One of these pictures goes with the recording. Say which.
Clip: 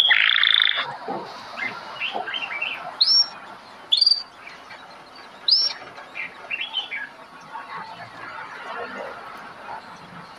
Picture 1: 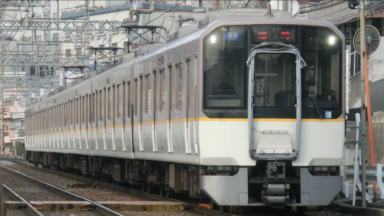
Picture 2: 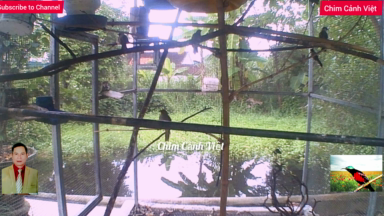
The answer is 2